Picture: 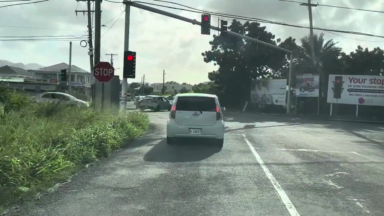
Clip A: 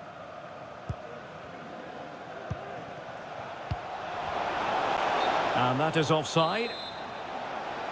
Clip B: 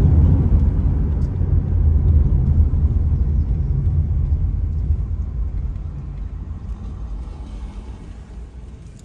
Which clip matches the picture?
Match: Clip B